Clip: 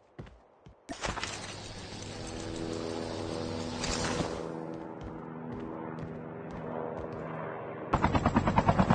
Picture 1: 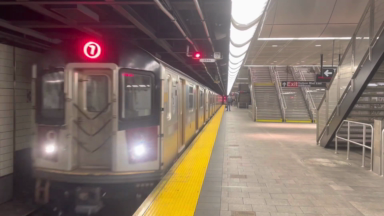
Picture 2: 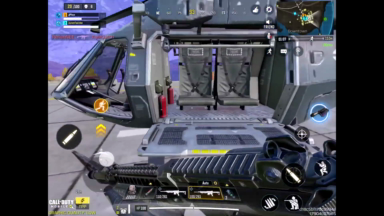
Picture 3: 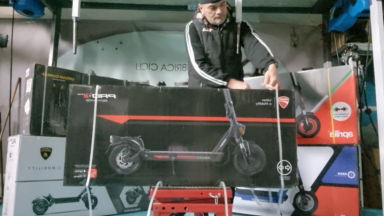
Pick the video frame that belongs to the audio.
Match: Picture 2